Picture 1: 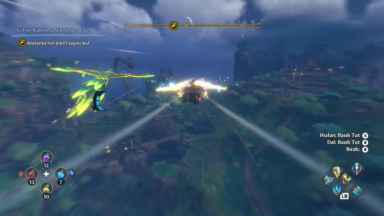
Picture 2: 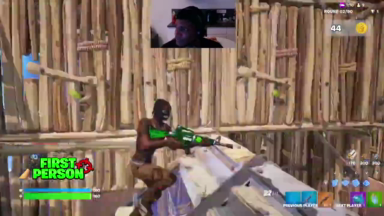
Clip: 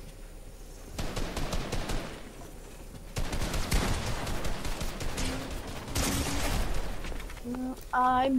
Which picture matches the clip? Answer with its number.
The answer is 2